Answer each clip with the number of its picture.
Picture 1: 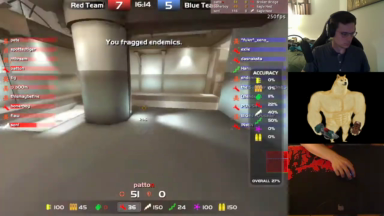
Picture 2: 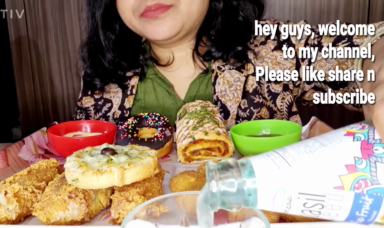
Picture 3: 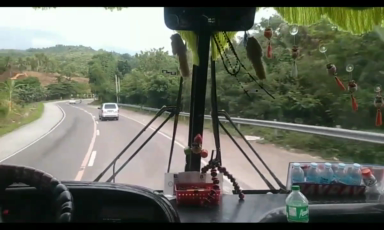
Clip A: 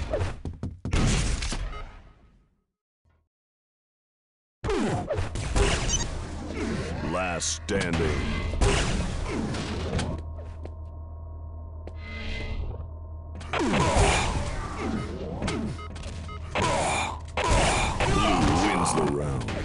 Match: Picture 1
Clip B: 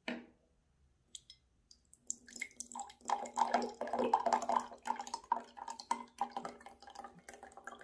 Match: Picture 2